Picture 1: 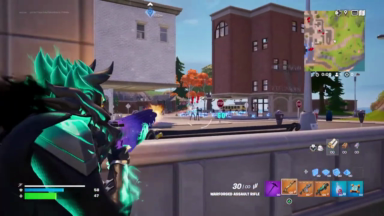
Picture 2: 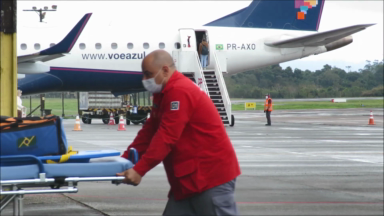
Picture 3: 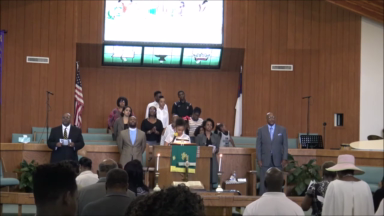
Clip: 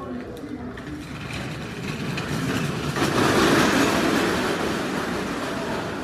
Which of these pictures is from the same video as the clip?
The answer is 2